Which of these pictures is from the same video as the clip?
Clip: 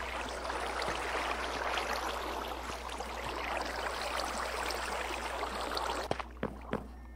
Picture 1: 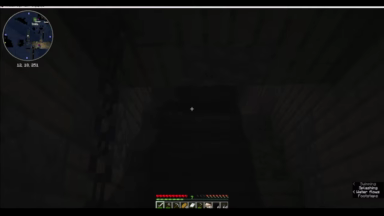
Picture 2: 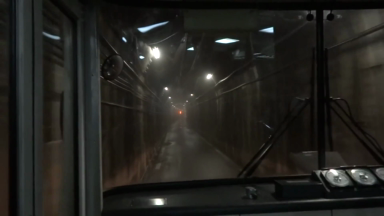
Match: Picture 1